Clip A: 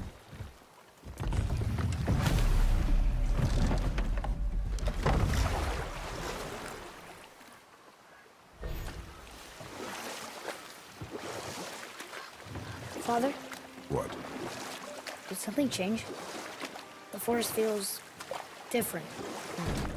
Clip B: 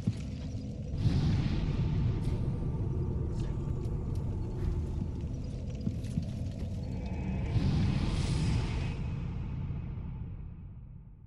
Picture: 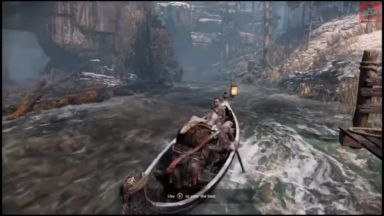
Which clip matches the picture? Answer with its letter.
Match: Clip A